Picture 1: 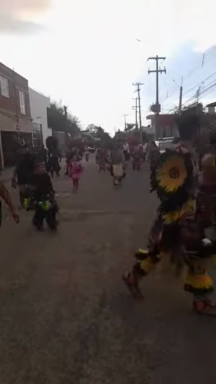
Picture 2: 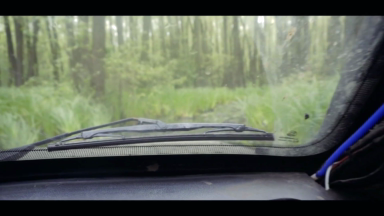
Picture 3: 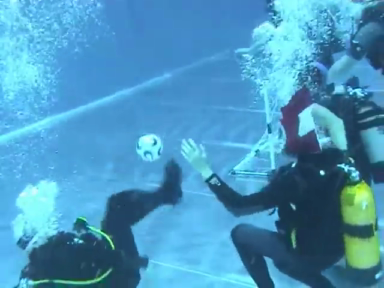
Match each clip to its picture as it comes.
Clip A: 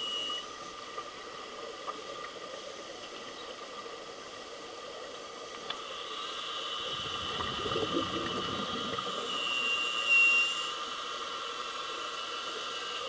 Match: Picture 3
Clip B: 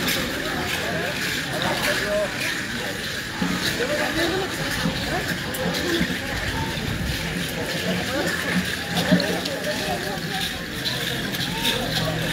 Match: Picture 1